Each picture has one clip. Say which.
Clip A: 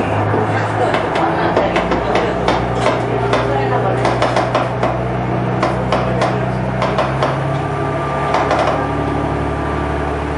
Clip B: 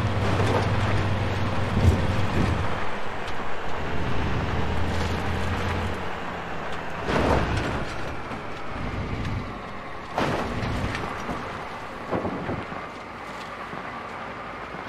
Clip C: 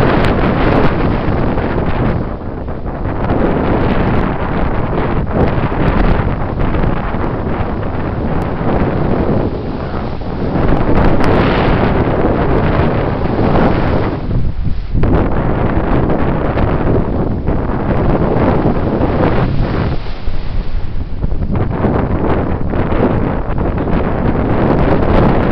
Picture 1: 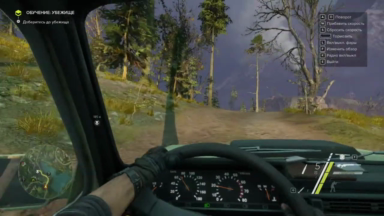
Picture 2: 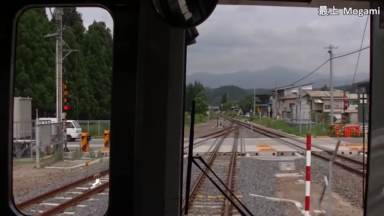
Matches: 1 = B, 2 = A